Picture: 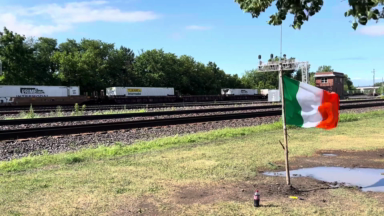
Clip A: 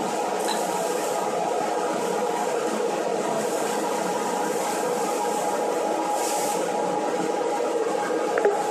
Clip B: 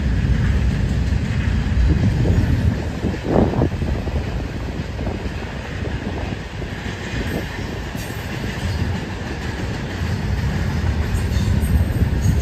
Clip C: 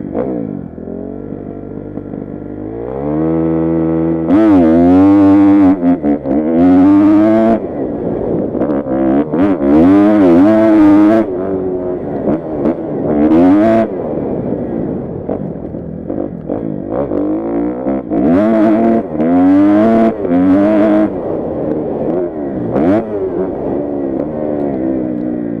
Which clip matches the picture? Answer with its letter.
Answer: B